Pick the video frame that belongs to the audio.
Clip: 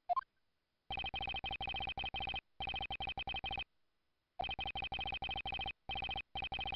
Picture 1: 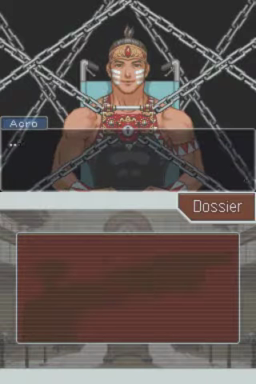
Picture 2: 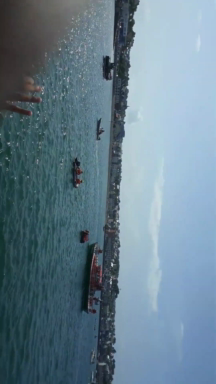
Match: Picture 1